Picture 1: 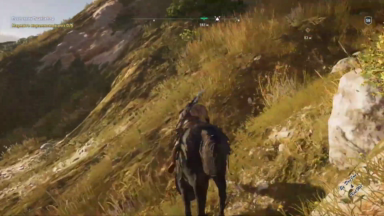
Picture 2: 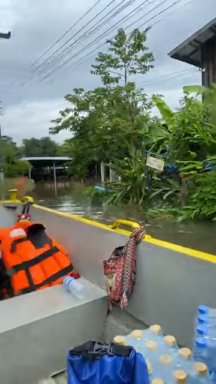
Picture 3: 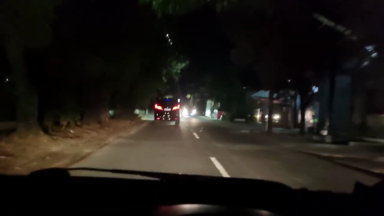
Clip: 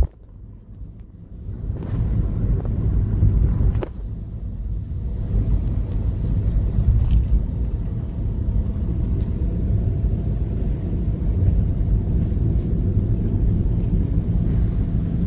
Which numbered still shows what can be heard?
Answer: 3